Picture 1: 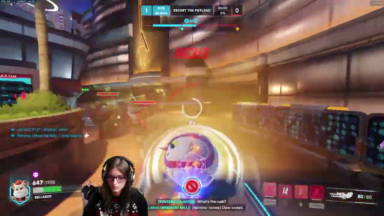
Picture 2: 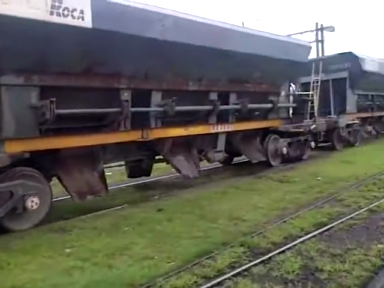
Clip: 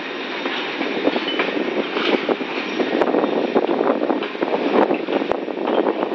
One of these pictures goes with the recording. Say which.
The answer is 2